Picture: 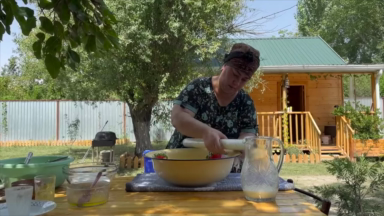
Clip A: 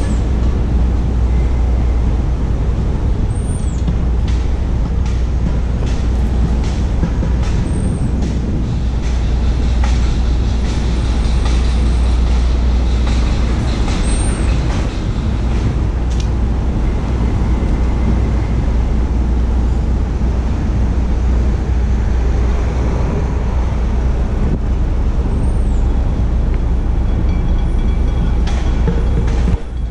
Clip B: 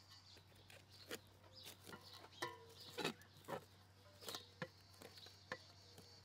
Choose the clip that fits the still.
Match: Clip B